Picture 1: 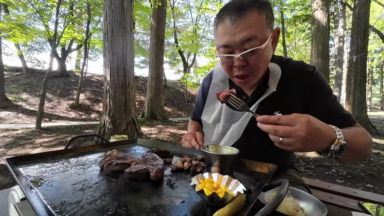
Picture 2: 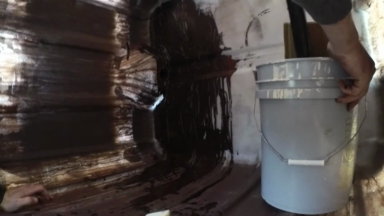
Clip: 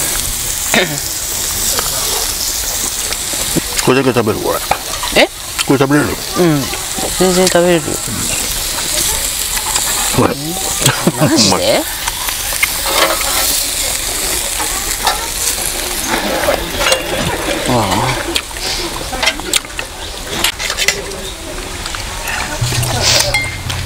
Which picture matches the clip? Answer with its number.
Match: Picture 1